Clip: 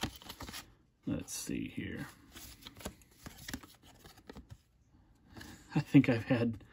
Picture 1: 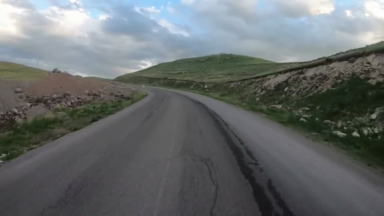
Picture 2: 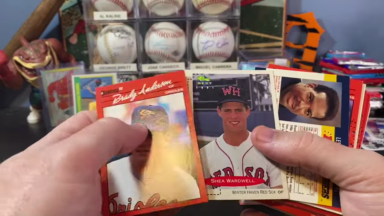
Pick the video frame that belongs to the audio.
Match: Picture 2